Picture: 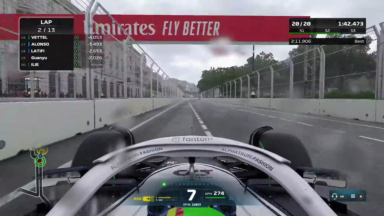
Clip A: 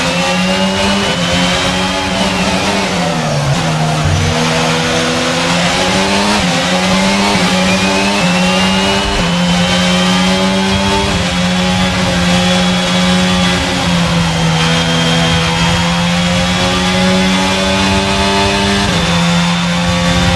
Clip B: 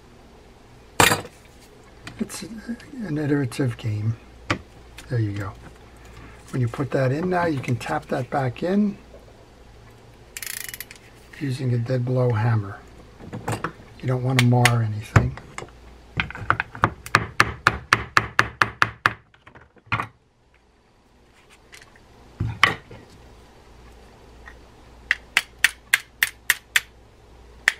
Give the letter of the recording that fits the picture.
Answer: A